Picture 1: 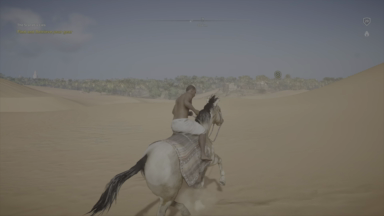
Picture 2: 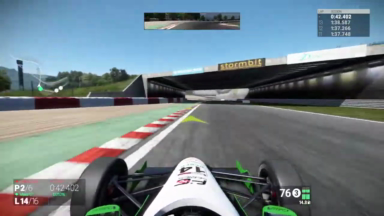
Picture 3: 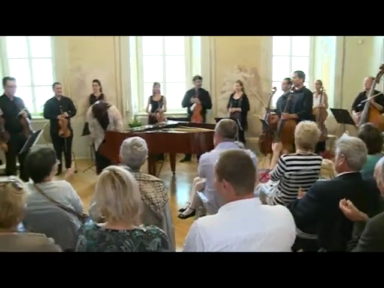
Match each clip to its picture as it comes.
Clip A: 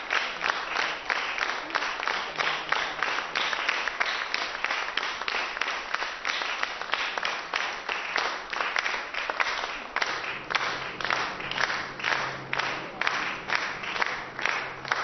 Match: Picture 3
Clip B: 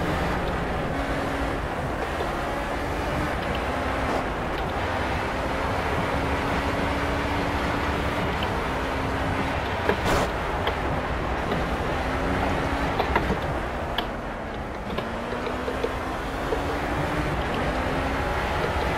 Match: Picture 2